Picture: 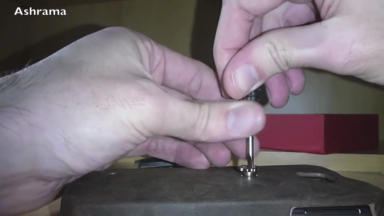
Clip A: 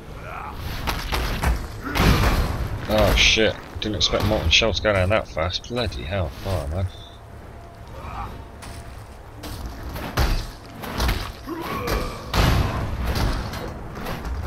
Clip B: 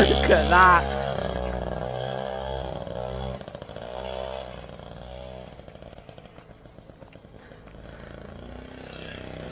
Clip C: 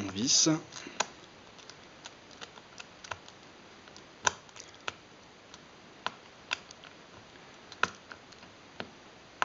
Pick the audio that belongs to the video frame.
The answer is C